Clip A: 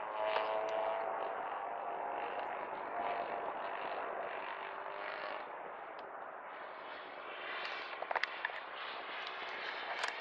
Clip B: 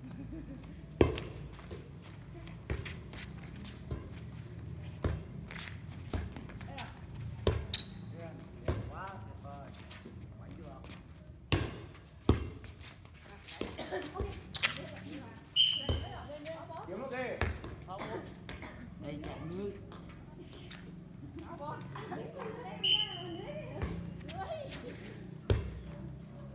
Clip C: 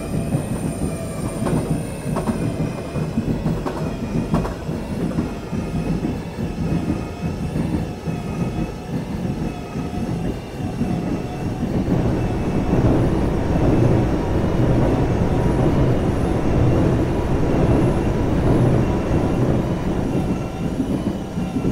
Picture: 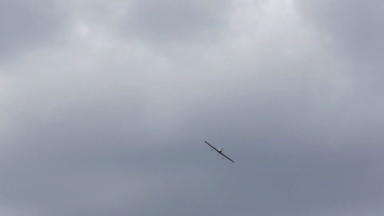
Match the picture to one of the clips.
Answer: A